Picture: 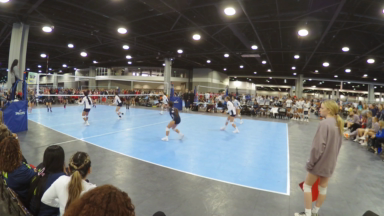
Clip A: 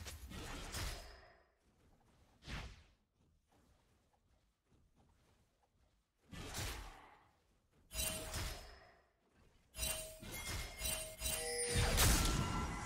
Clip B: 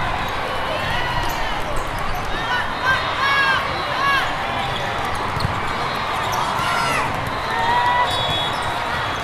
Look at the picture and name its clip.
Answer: B